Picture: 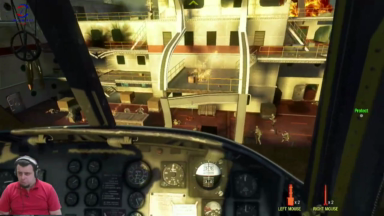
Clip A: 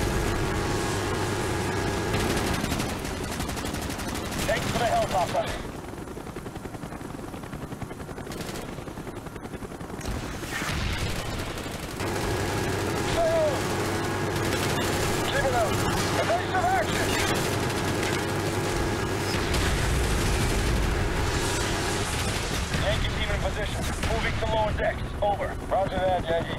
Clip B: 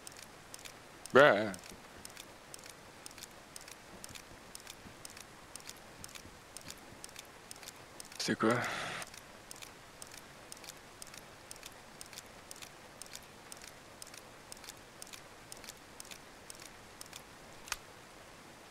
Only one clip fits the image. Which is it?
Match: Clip A